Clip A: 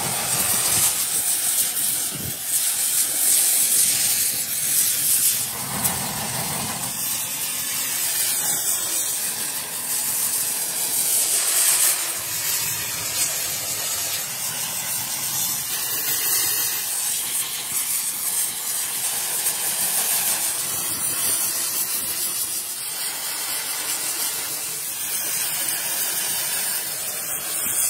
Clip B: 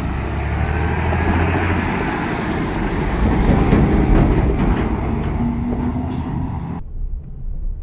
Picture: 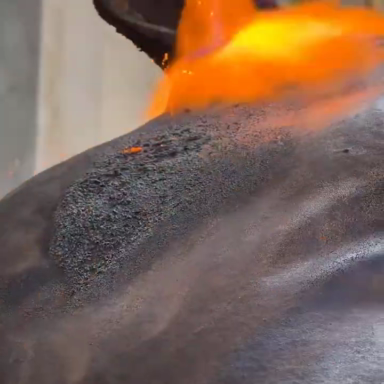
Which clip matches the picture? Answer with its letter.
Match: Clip A